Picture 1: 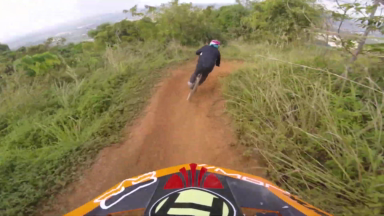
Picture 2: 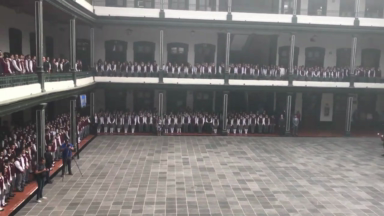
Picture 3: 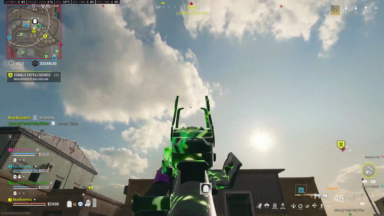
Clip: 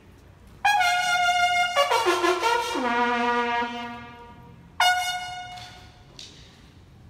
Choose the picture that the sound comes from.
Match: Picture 2